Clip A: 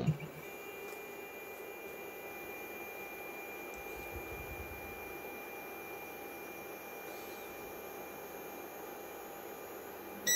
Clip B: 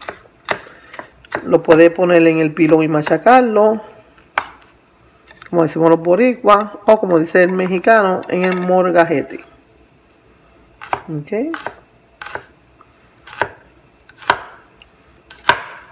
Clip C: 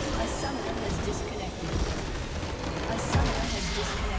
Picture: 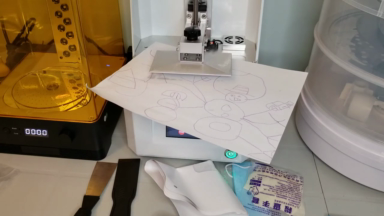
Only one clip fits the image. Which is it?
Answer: A